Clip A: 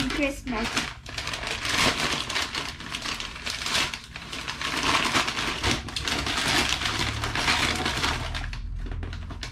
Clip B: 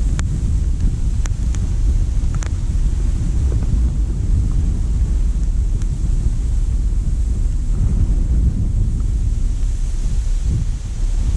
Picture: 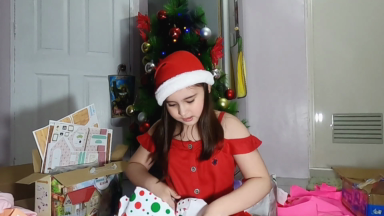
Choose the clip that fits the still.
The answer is A